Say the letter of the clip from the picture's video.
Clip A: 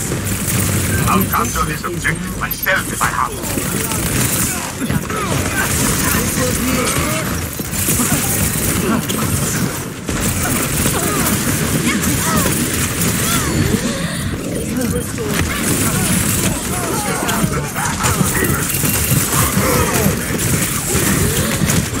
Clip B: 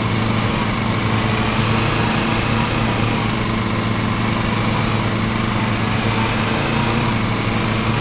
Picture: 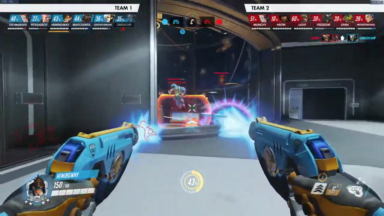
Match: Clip A